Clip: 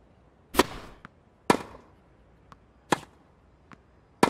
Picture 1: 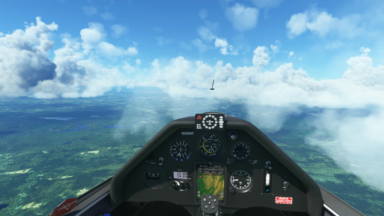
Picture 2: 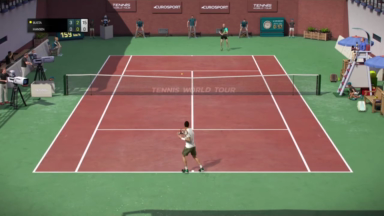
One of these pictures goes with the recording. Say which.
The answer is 2